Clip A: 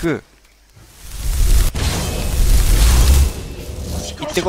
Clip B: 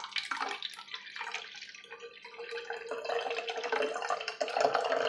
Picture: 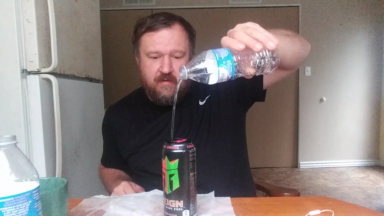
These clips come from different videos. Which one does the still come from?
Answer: B